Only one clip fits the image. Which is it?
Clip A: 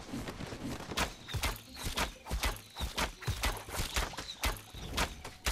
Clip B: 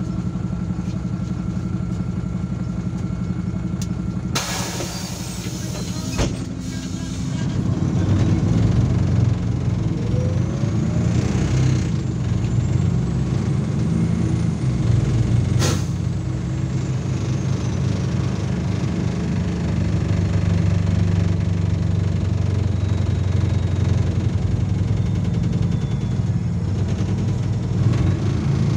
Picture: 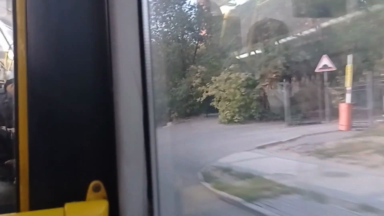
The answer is B